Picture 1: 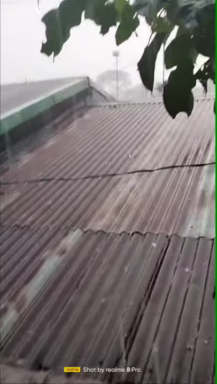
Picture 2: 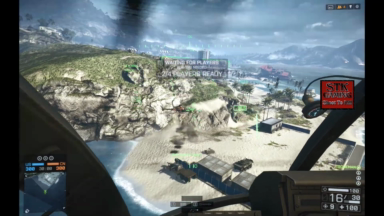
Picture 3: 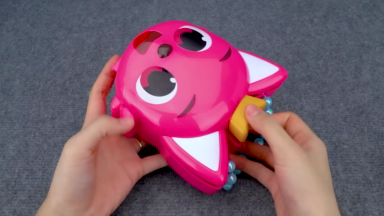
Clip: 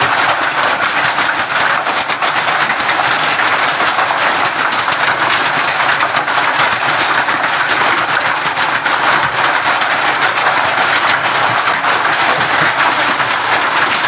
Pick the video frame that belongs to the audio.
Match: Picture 1